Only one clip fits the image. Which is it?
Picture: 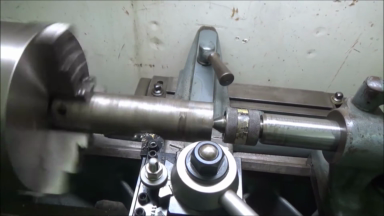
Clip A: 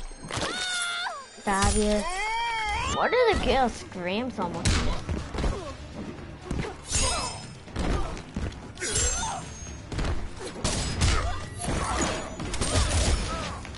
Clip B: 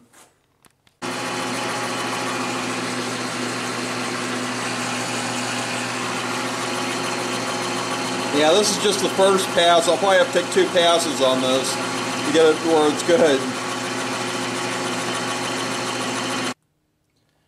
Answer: B